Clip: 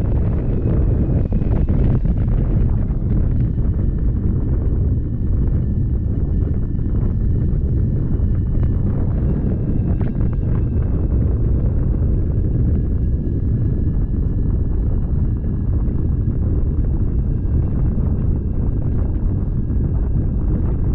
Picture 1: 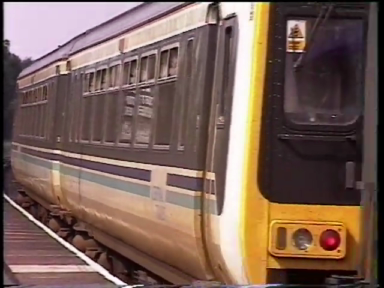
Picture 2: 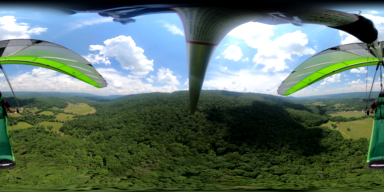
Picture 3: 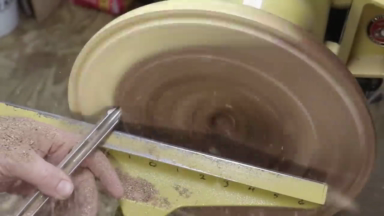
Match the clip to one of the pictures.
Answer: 2